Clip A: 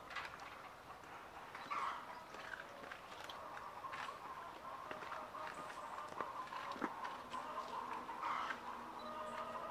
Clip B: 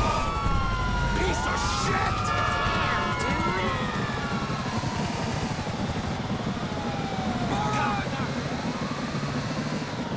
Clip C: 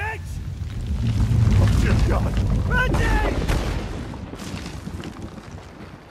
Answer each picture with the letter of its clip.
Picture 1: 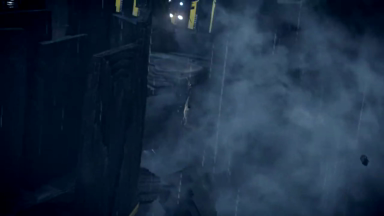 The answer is C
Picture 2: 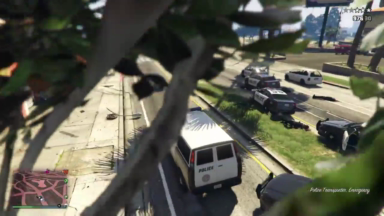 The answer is B